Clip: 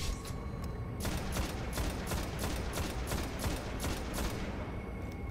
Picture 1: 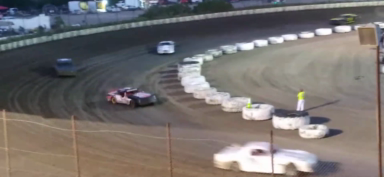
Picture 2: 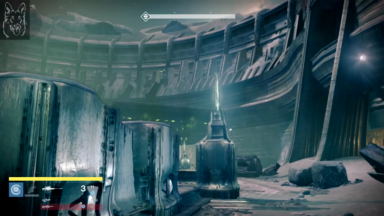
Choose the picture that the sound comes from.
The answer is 2